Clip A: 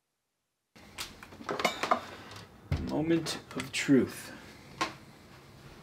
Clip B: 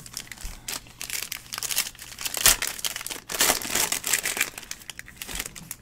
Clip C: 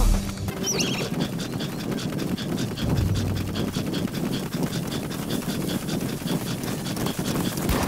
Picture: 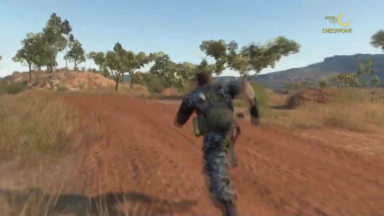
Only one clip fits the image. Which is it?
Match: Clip C